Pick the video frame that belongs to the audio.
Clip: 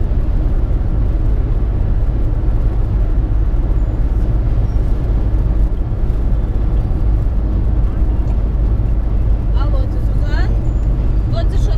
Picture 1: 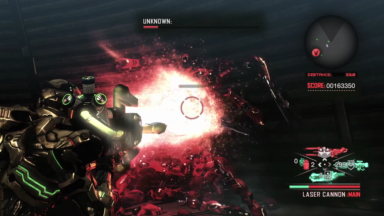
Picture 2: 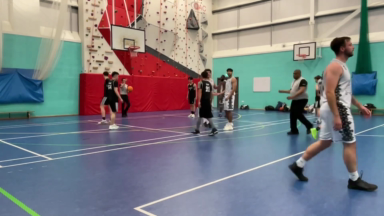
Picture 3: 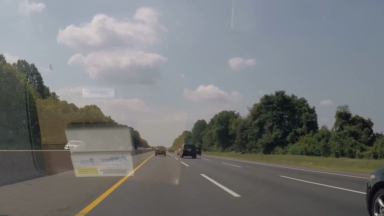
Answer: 3